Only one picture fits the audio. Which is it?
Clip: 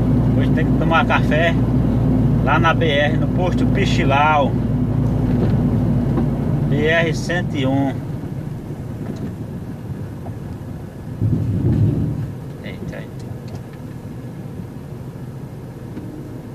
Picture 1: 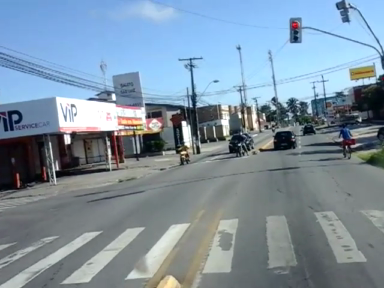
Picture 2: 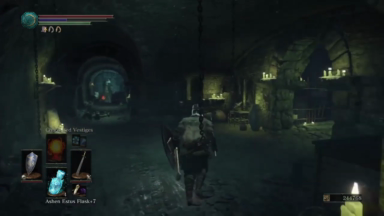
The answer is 1